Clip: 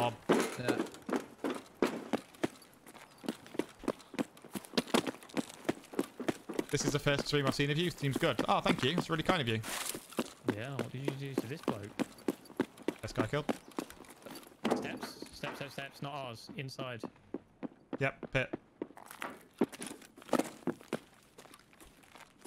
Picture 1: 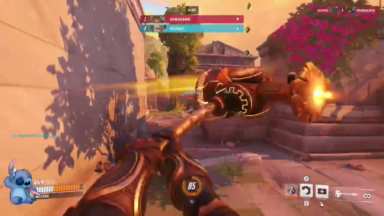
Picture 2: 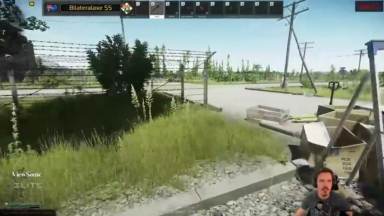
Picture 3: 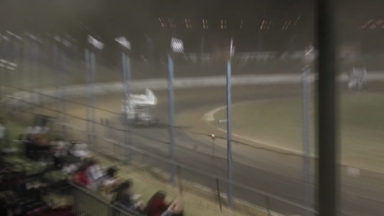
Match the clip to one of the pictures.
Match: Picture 2